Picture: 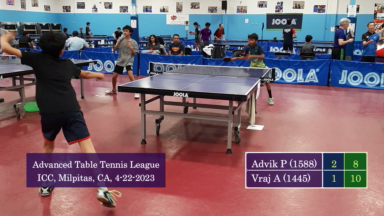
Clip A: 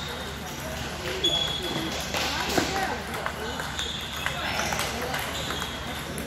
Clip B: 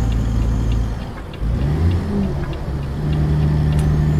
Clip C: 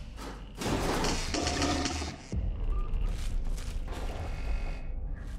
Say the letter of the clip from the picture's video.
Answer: A